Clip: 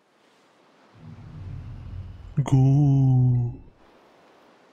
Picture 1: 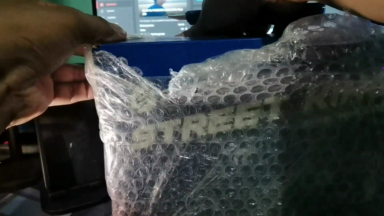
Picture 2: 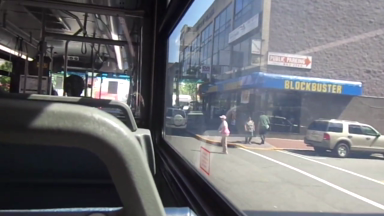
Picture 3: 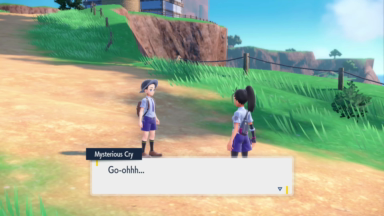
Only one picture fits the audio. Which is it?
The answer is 3